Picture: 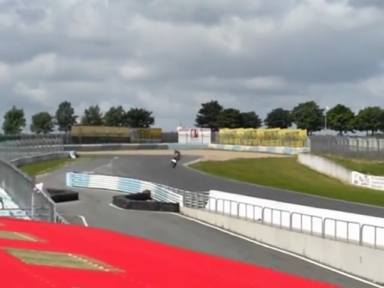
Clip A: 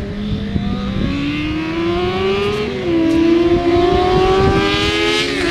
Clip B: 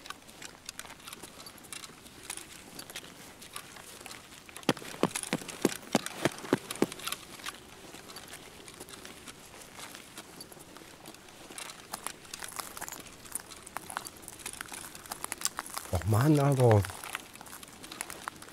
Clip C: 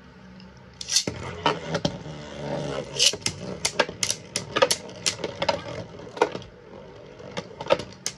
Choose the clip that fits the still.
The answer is A